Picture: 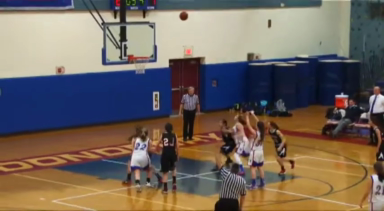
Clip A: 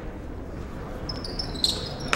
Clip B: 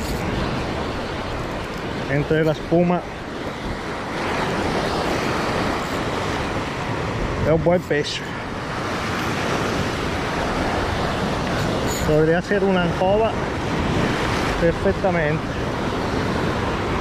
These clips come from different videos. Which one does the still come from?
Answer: A